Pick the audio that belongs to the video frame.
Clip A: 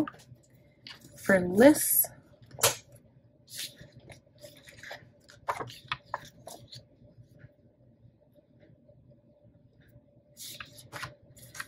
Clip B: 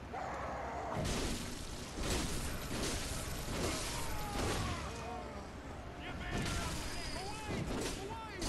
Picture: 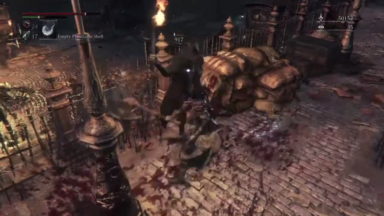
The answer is B